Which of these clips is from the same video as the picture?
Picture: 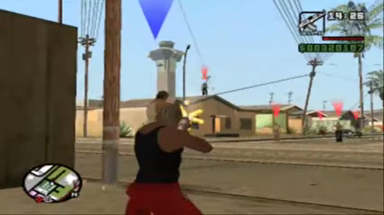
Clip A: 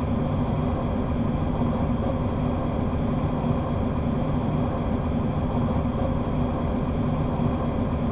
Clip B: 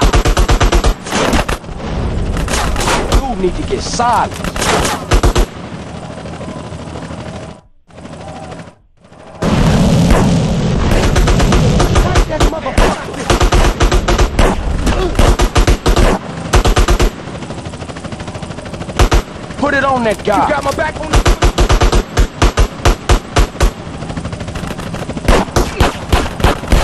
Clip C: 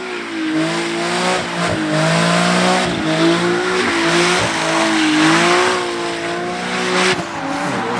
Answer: B